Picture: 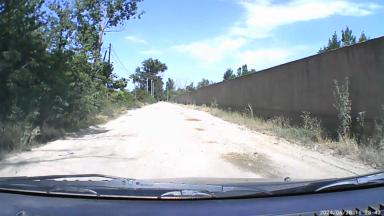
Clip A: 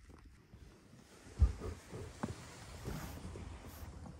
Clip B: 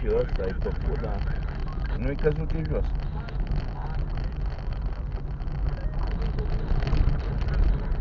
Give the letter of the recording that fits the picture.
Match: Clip B